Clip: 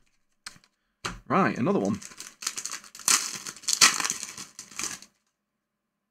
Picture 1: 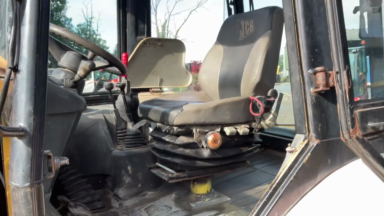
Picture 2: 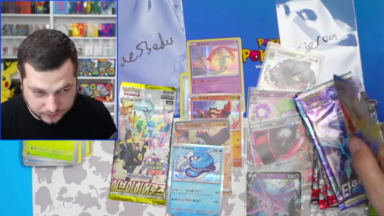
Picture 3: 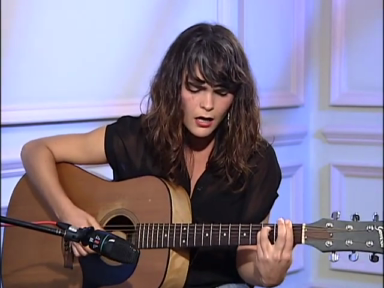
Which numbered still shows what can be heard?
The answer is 2